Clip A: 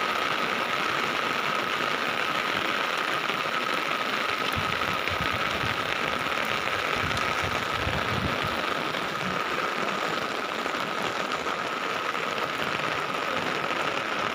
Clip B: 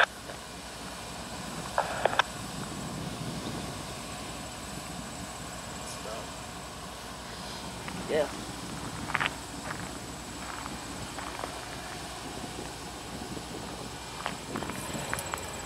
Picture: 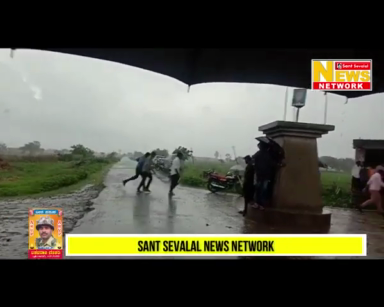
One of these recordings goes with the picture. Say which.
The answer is A